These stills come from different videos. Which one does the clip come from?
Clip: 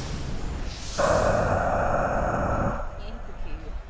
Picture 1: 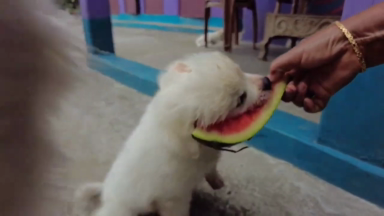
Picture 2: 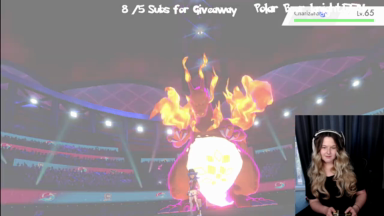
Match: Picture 2